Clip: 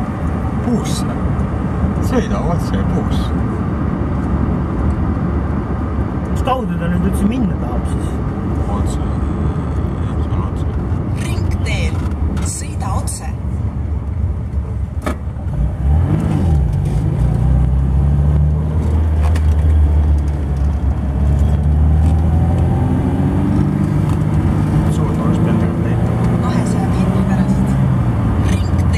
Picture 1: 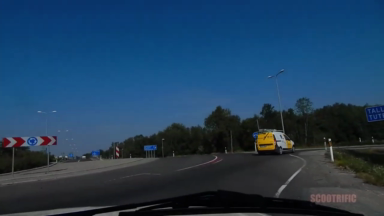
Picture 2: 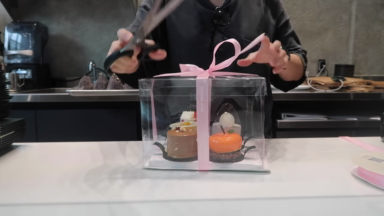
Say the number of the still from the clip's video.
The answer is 1